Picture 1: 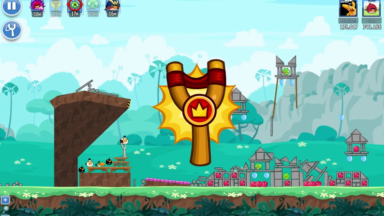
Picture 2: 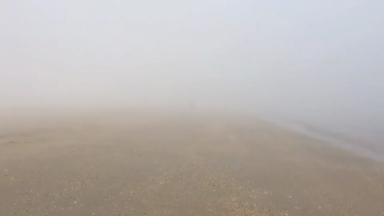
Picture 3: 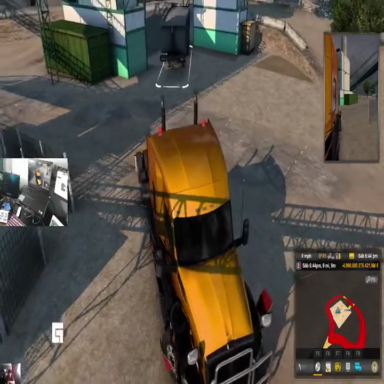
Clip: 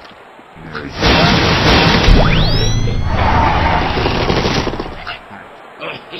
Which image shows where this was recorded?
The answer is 1